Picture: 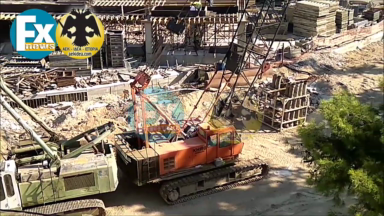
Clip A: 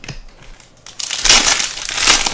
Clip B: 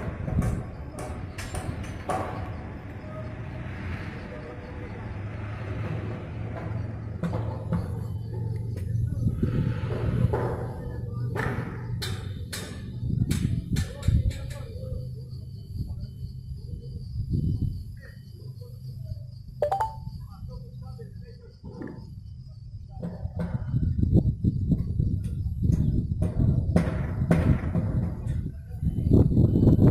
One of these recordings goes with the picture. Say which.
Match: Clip B